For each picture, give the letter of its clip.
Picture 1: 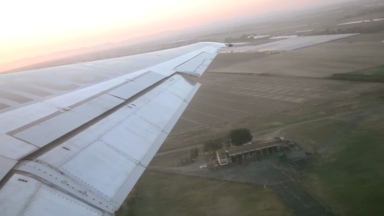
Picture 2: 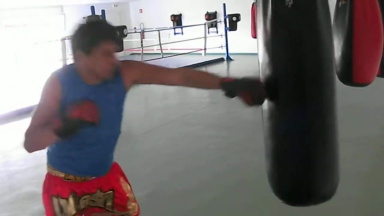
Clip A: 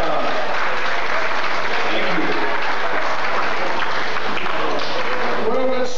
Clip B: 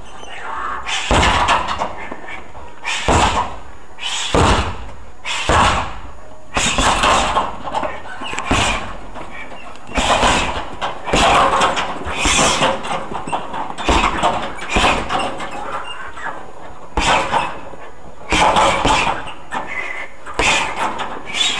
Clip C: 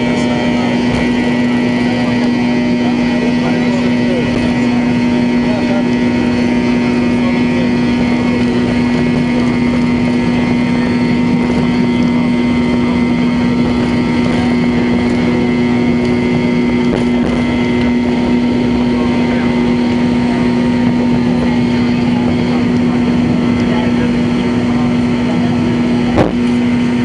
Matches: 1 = C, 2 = B